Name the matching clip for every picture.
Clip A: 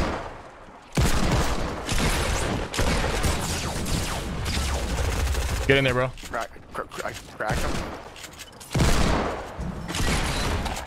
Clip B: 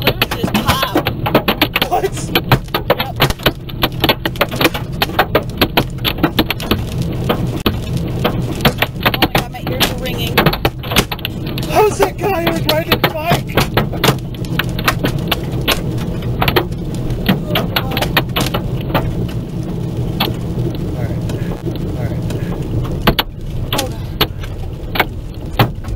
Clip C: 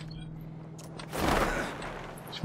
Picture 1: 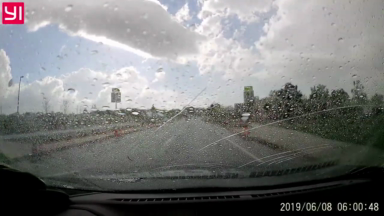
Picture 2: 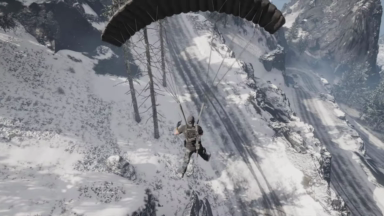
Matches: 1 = B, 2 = C